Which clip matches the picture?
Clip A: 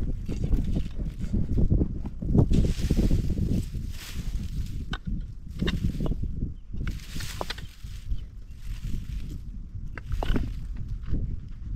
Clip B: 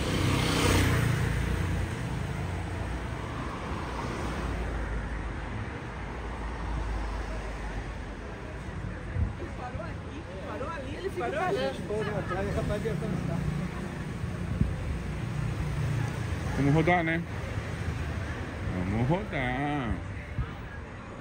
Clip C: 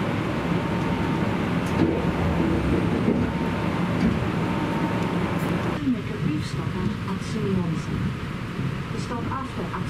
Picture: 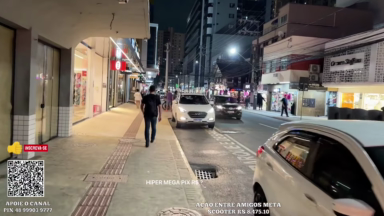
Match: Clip B